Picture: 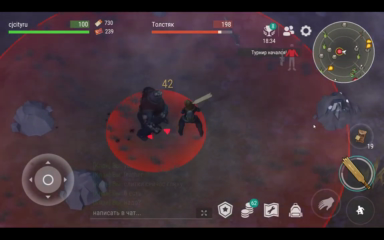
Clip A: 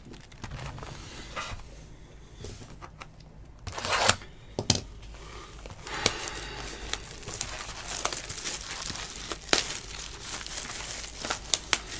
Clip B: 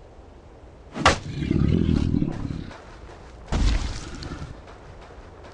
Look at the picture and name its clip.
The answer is B